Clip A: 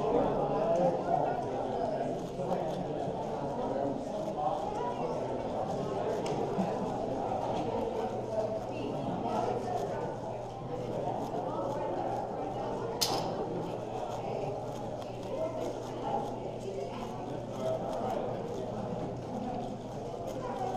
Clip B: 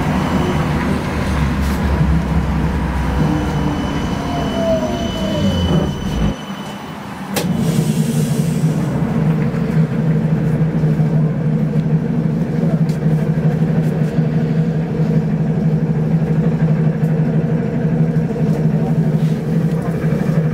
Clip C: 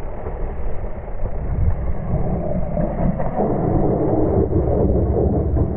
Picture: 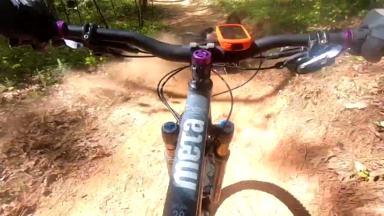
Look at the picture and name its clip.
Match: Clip C